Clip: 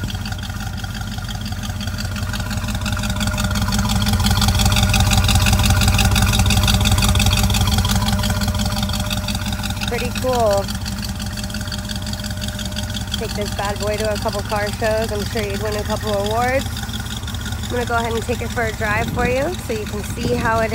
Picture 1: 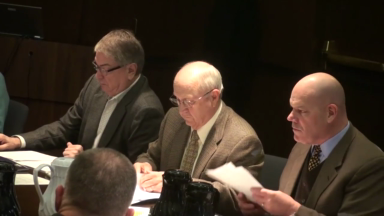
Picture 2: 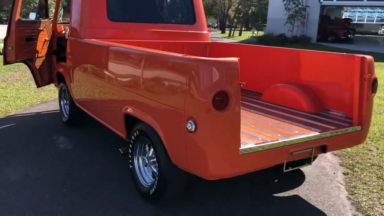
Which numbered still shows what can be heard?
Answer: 2